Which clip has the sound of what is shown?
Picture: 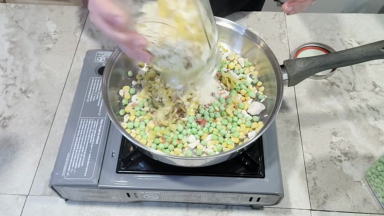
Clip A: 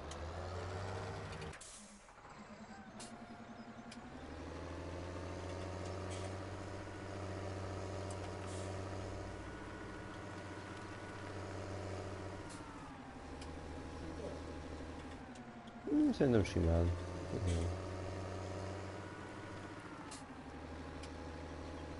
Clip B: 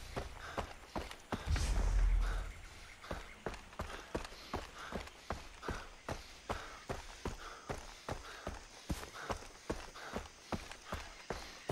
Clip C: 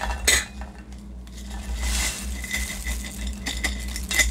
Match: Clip C